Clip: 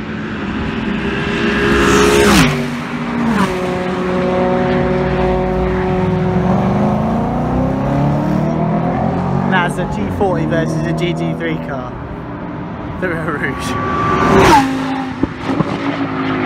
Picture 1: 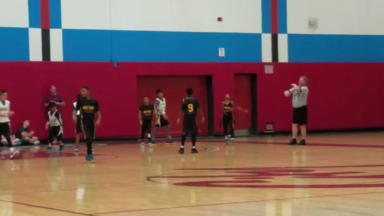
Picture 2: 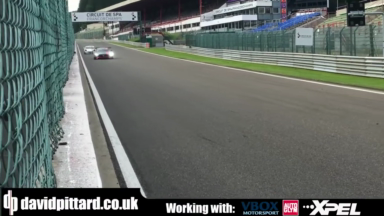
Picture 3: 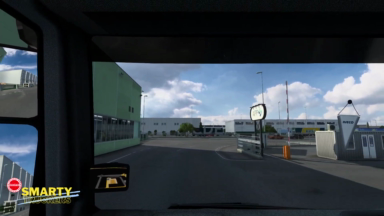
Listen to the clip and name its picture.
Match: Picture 2